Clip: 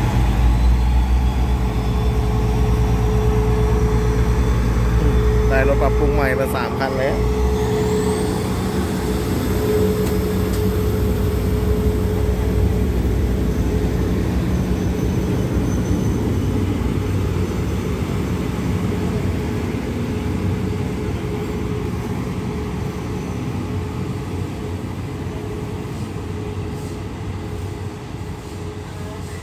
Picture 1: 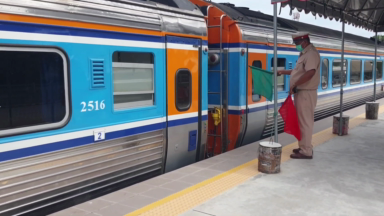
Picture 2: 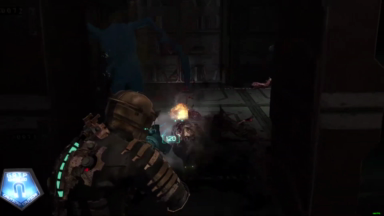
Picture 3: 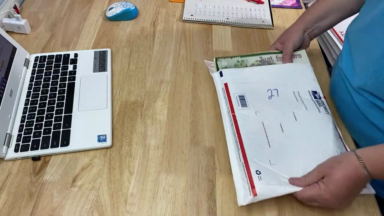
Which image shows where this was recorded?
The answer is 1